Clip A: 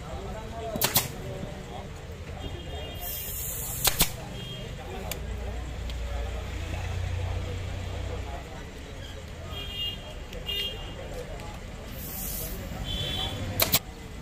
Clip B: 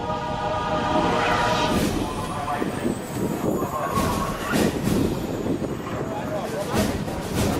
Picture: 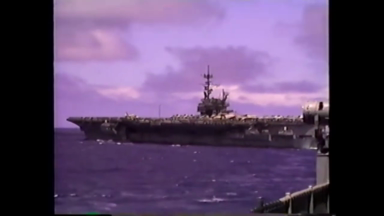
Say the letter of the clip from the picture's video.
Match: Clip B